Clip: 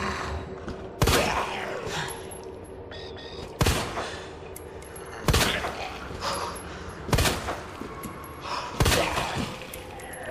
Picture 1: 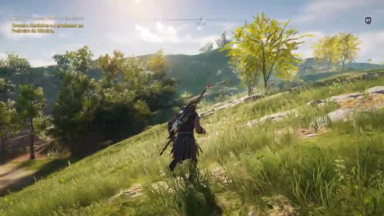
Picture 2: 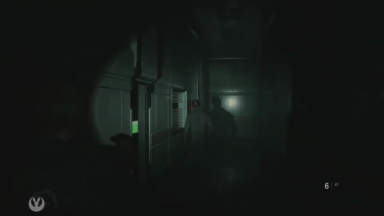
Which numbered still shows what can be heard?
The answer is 2